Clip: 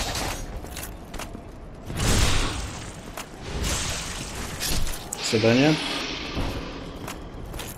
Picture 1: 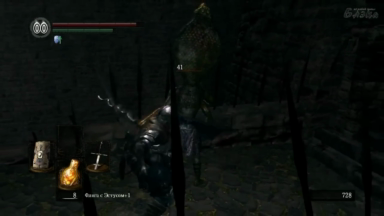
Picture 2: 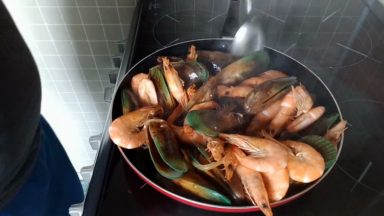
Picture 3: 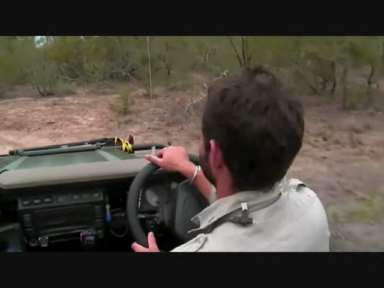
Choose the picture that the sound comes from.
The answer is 1